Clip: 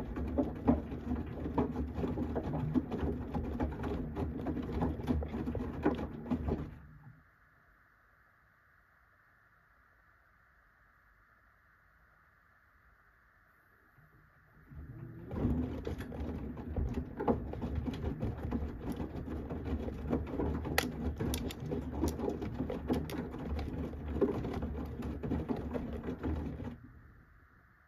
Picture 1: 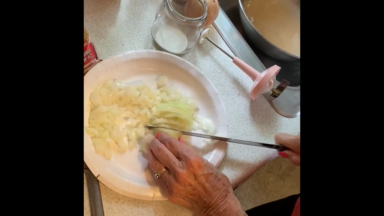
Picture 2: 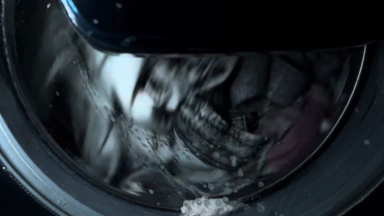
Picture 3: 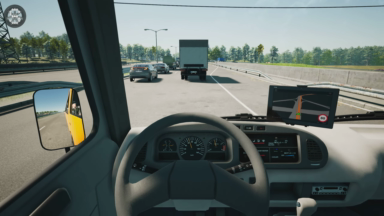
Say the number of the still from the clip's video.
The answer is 2